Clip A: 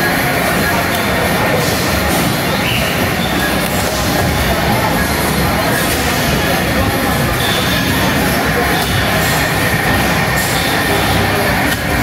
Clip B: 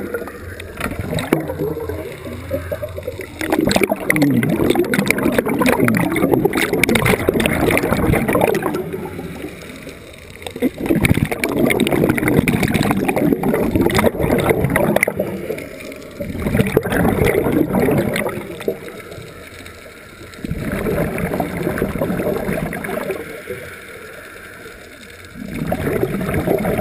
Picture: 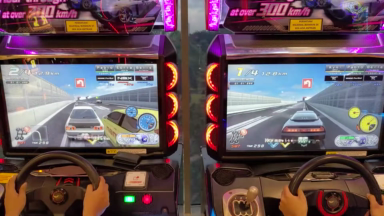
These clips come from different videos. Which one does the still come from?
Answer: A